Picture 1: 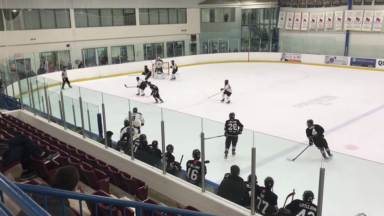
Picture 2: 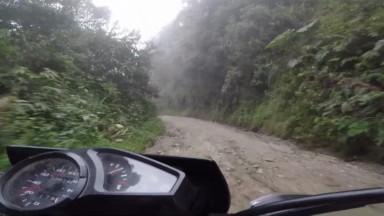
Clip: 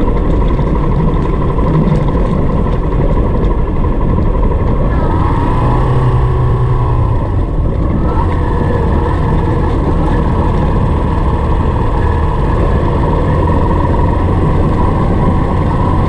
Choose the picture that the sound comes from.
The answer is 2